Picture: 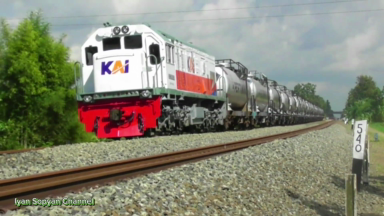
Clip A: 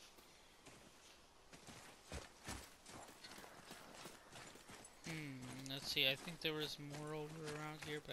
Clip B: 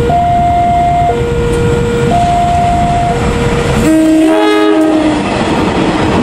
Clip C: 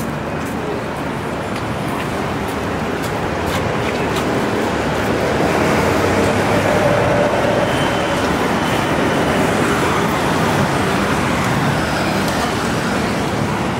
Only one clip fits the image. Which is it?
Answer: B